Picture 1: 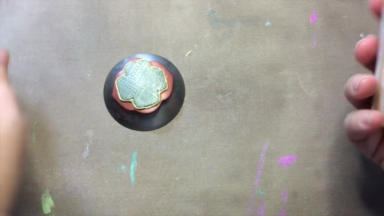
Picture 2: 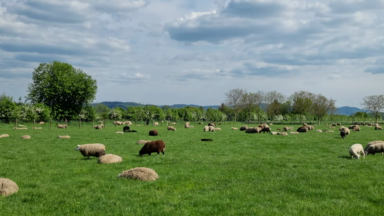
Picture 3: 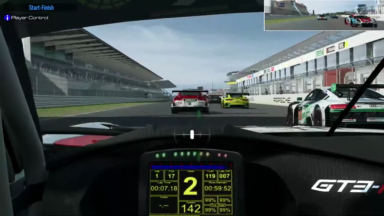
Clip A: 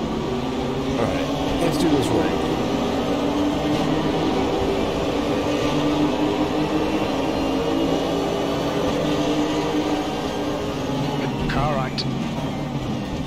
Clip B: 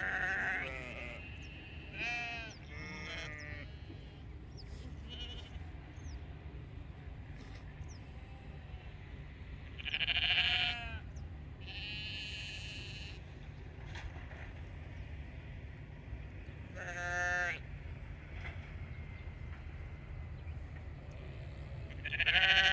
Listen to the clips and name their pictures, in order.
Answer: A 3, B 2